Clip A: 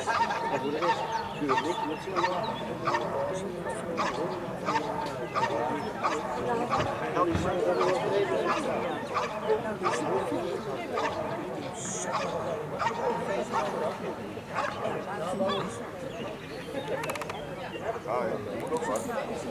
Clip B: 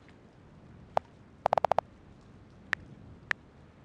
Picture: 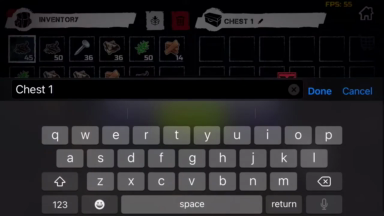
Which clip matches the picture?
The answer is B